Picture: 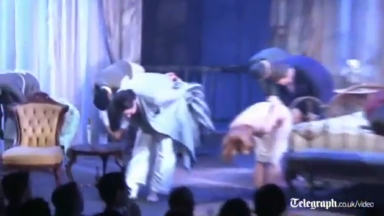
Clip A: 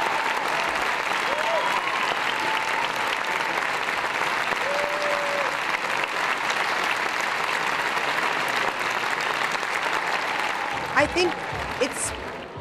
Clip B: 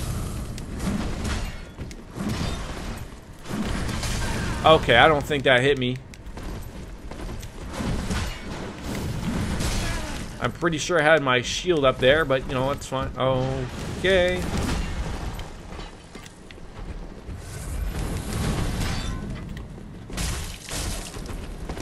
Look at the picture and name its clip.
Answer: A